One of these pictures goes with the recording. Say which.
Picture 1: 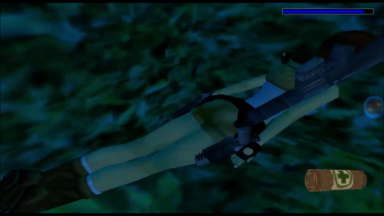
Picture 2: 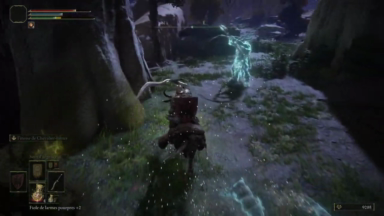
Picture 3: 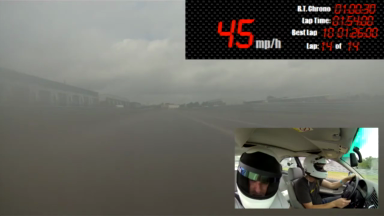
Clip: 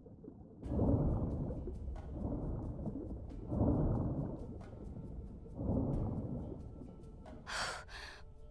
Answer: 1